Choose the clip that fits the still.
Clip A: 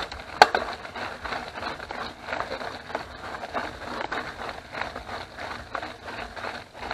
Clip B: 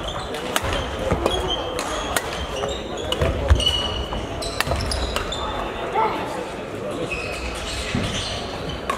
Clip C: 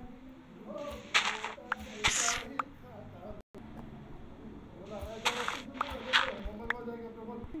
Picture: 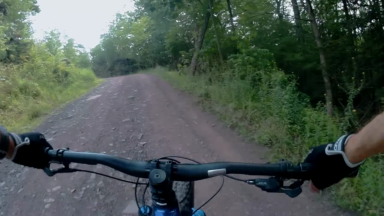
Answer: A